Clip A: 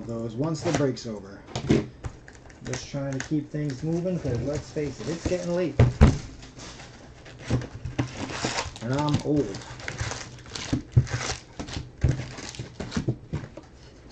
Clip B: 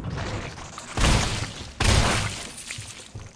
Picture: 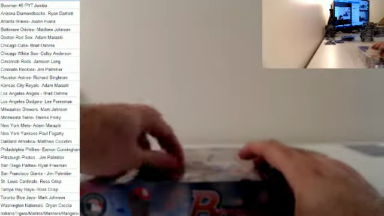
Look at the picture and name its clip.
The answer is A